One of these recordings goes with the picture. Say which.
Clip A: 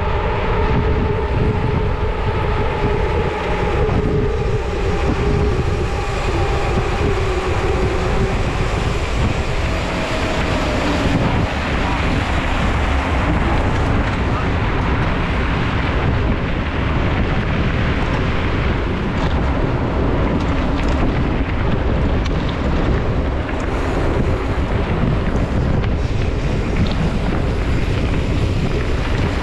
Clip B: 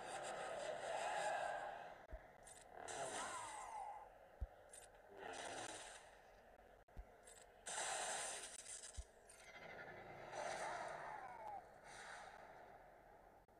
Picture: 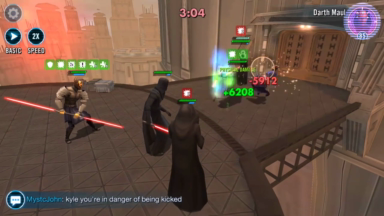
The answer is B